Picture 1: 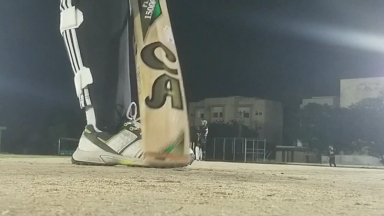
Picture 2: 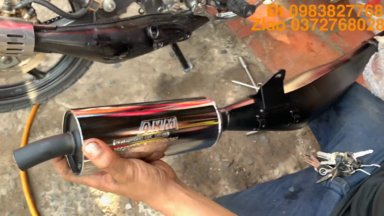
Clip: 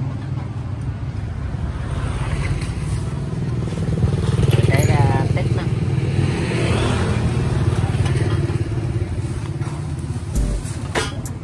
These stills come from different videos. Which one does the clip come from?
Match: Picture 2